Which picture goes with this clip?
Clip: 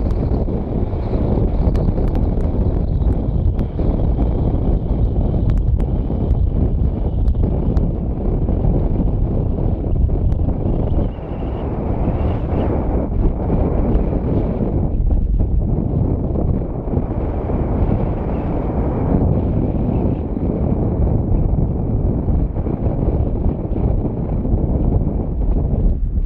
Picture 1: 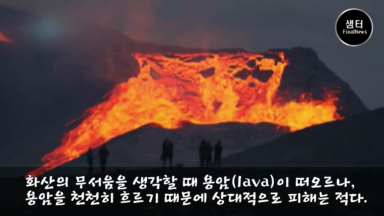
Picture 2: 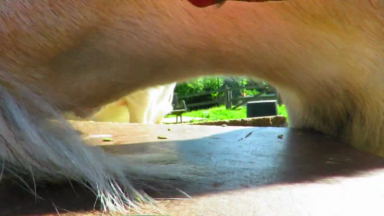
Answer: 1